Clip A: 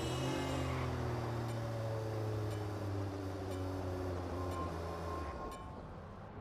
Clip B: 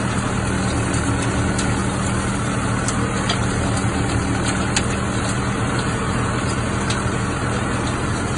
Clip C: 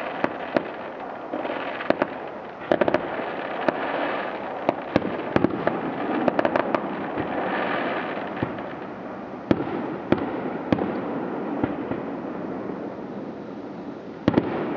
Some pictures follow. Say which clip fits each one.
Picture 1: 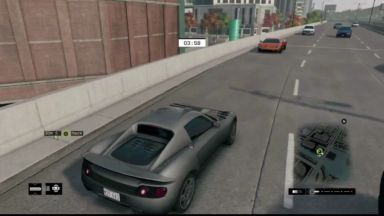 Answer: A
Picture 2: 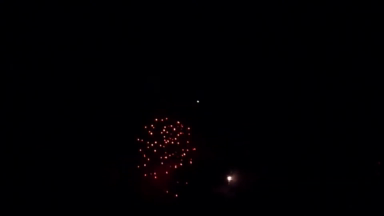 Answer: C